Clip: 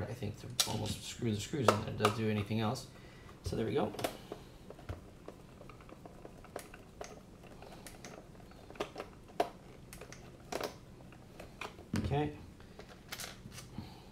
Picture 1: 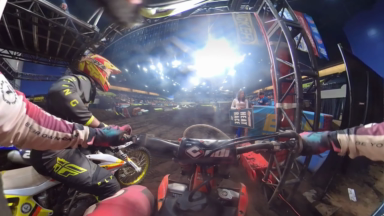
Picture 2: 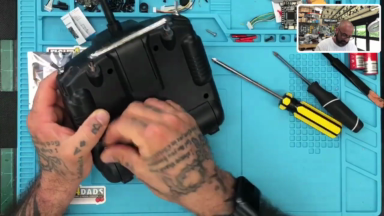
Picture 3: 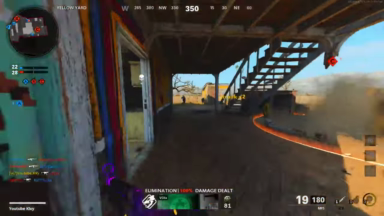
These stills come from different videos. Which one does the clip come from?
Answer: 2